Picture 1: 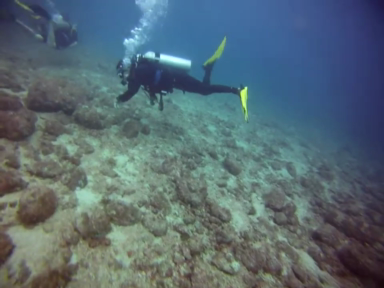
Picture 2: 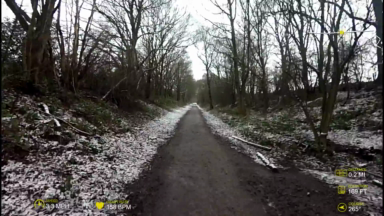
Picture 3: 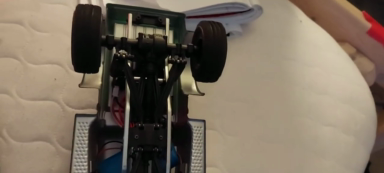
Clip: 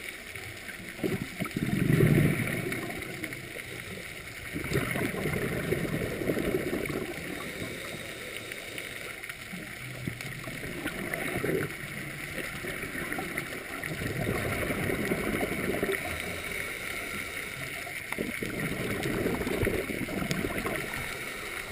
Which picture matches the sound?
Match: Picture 1